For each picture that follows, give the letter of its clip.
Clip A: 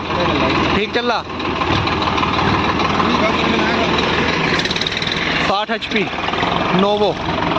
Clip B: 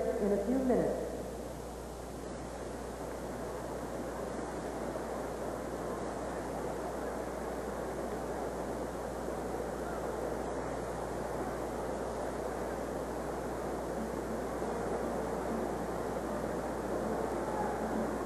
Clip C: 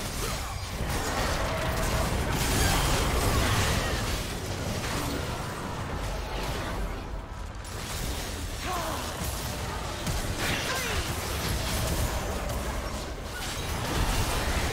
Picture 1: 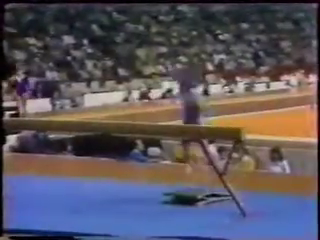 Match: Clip B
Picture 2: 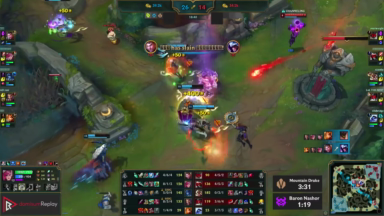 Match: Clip C